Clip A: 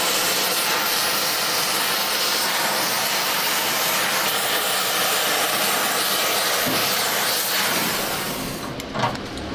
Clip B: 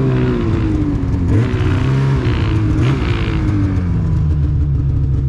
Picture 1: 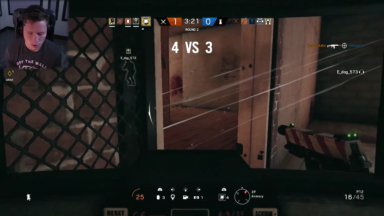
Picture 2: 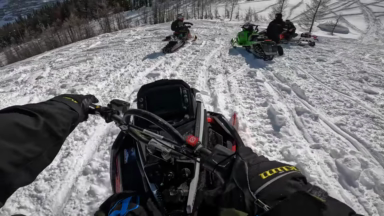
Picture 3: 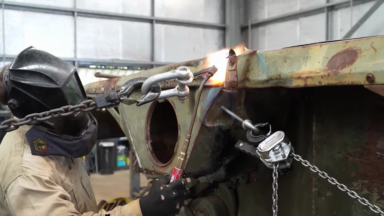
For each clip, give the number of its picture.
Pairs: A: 3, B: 2